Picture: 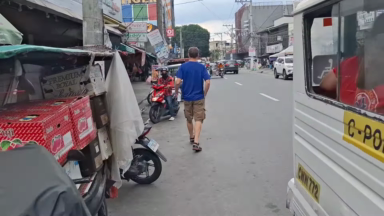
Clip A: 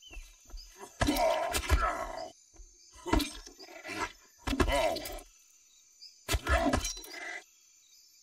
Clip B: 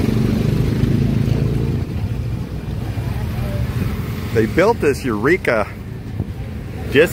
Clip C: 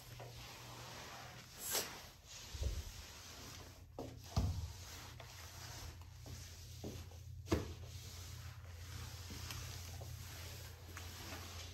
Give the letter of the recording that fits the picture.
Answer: B